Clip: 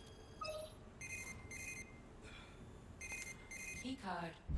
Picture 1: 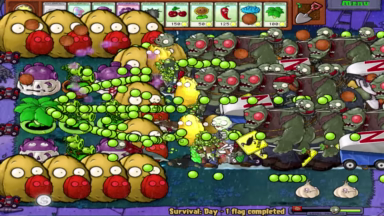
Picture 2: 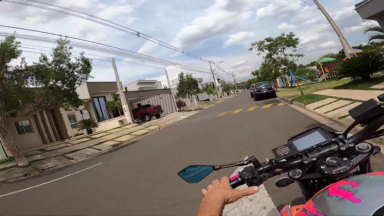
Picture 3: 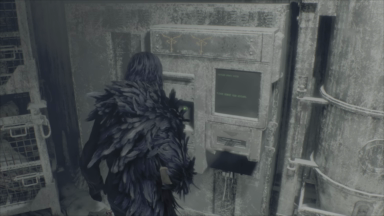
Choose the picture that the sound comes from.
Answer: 3